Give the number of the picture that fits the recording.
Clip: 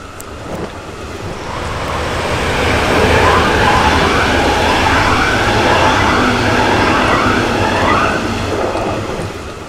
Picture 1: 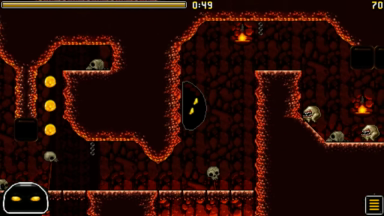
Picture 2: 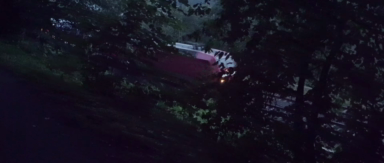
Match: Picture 2